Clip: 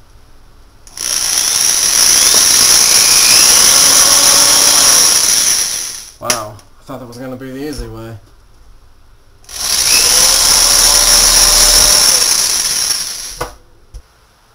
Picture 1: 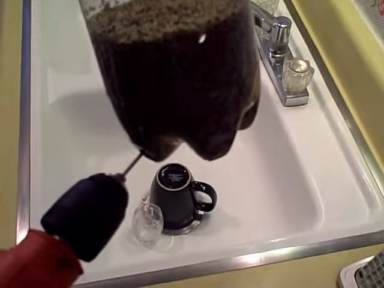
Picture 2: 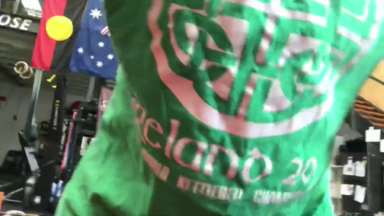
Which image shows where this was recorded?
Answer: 1